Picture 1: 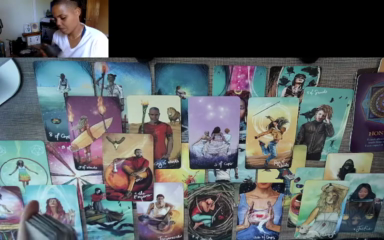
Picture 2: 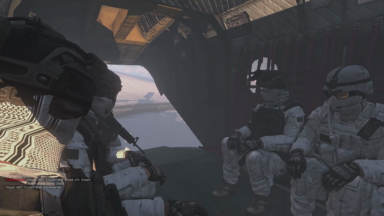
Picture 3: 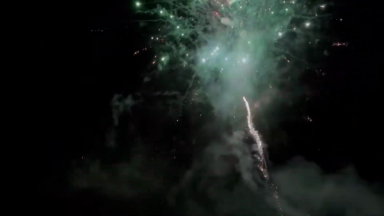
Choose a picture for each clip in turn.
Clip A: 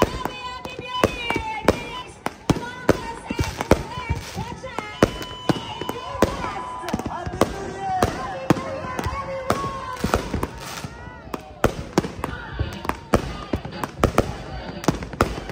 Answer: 3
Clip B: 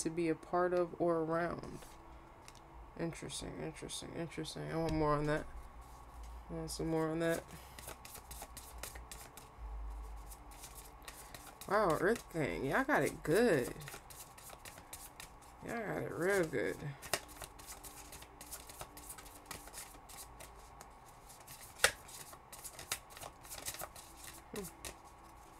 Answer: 1